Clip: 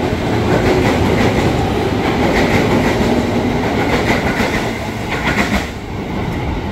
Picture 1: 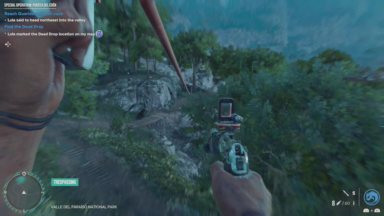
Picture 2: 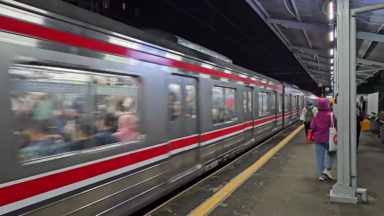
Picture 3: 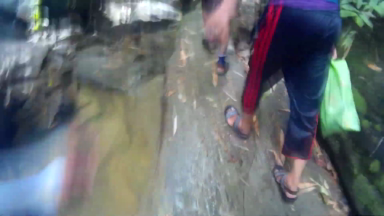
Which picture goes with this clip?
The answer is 2